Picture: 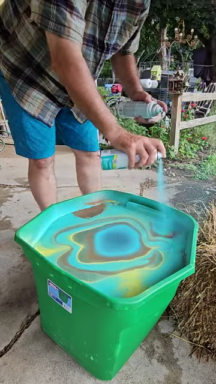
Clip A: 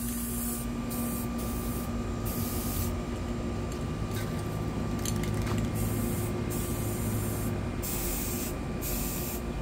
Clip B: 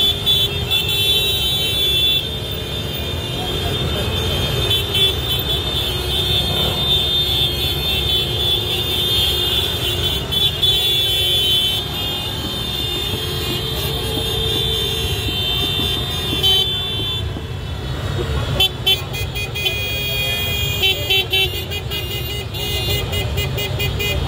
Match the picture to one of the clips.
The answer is A